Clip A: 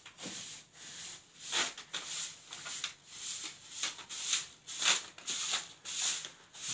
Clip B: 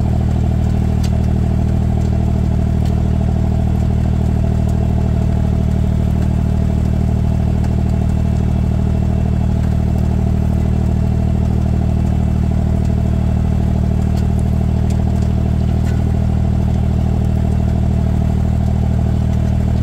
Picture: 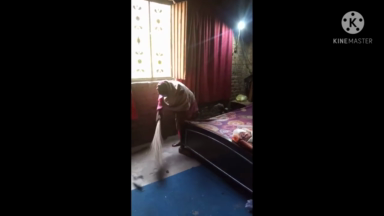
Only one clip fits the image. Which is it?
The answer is A